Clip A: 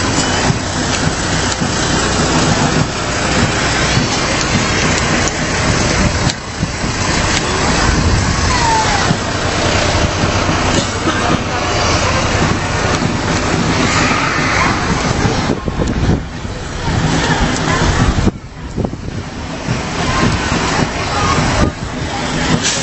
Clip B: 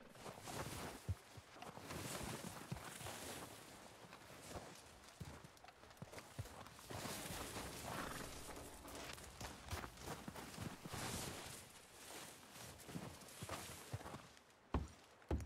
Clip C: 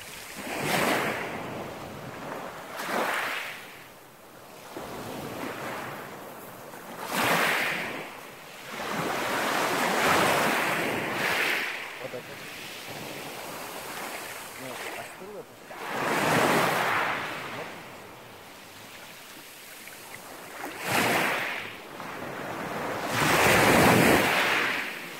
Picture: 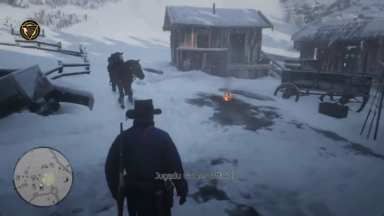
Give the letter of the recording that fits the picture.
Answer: B